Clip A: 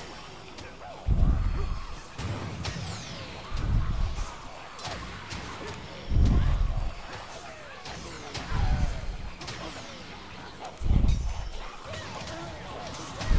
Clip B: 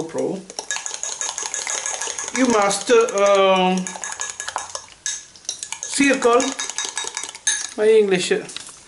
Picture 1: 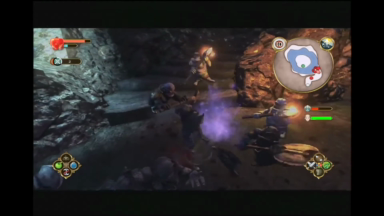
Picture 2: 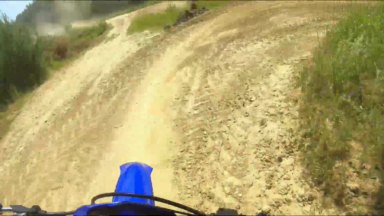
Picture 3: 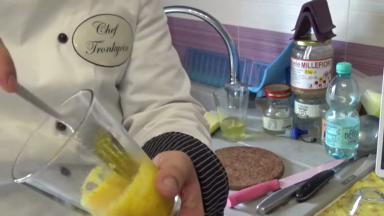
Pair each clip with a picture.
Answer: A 1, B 3